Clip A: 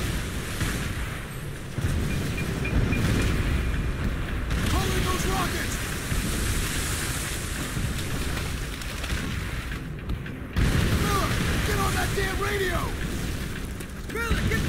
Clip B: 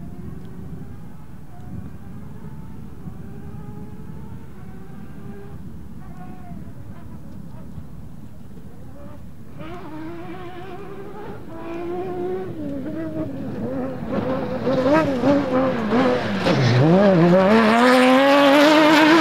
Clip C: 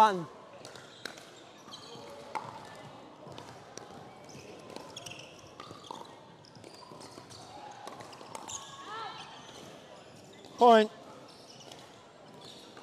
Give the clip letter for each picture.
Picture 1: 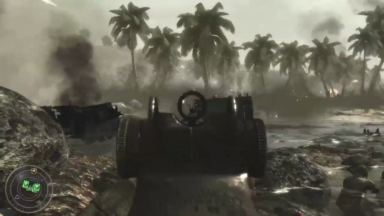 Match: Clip A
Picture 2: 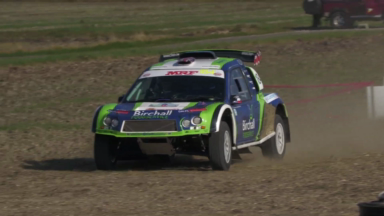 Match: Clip B